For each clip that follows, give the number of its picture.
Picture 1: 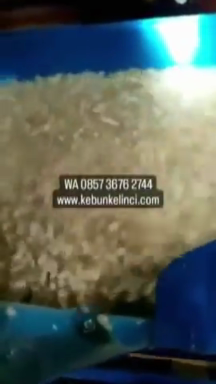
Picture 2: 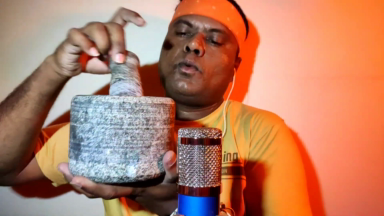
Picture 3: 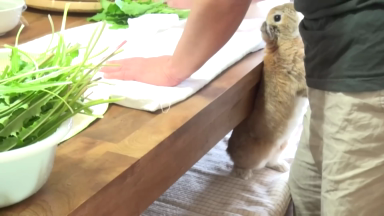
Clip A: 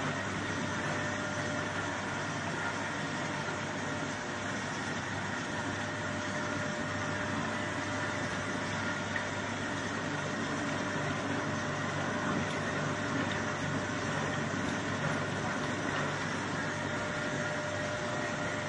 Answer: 1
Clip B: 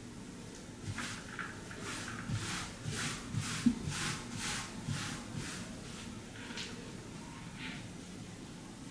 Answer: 3